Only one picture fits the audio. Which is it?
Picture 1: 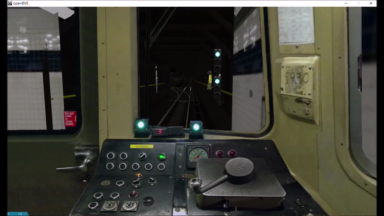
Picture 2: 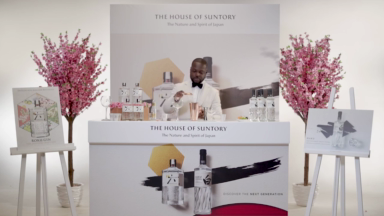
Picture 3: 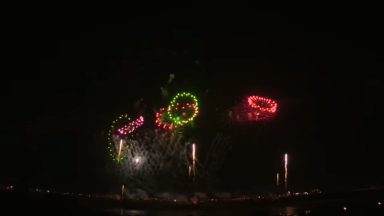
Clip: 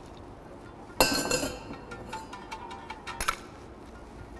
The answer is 2